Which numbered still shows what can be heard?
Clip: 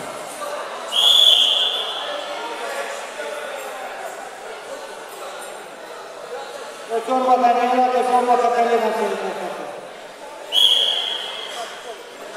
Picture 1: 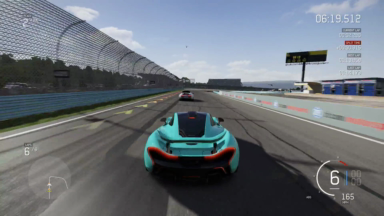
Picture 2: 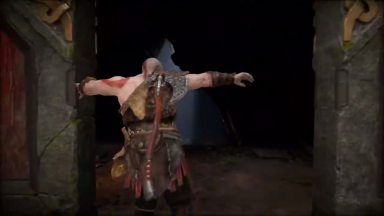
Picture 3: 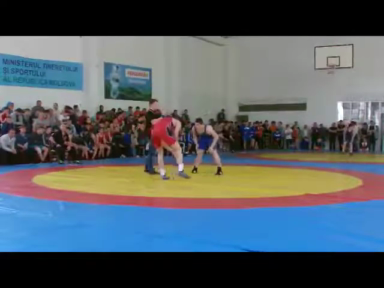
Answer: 3